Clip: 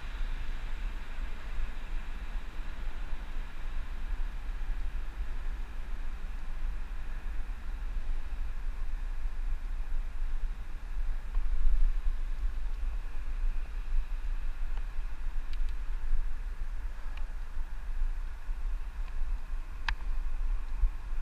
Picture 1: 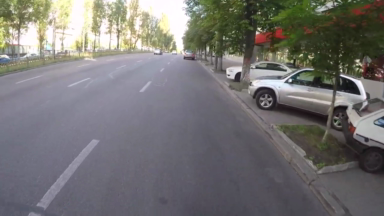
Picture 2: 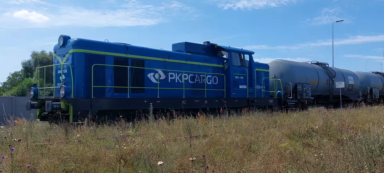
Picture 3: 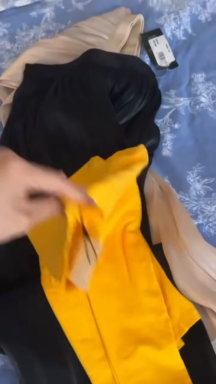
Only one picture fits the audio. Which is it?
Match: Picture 1